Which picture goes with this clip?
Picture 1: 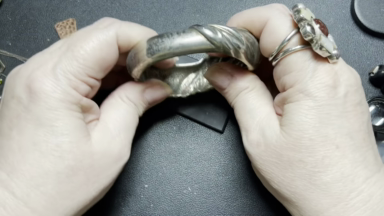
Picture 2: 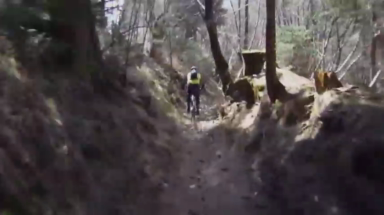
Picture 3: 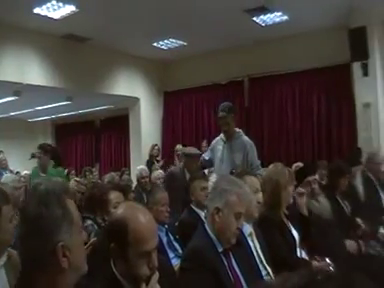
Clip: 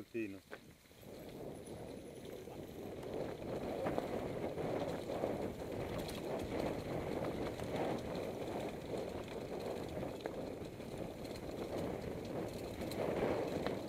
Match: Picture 2